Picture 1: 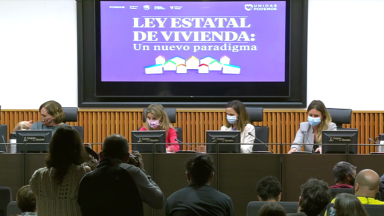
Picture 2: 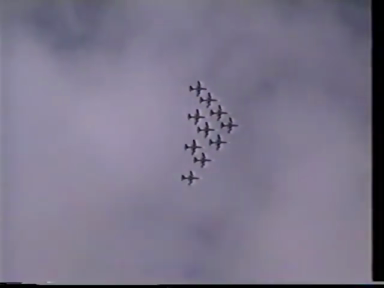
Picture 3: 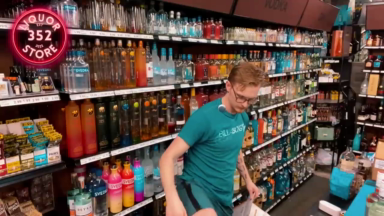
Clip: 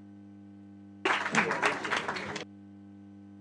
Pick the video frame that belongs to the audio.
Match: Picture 1